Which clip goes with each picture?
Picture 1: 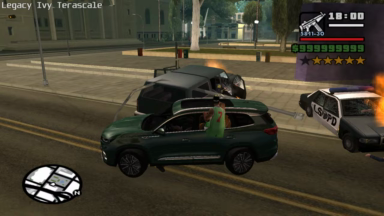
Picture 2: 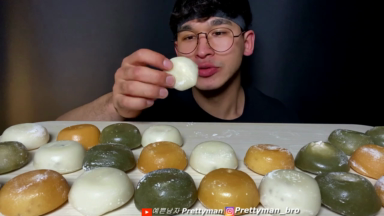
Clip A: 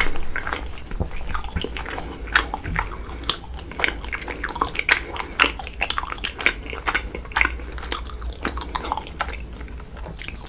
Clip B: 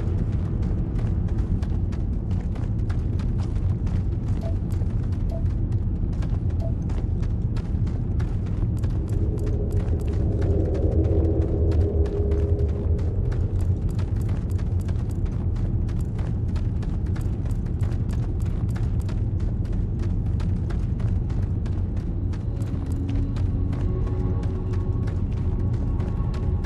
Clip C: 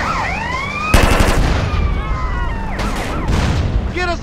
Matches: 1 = C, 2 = A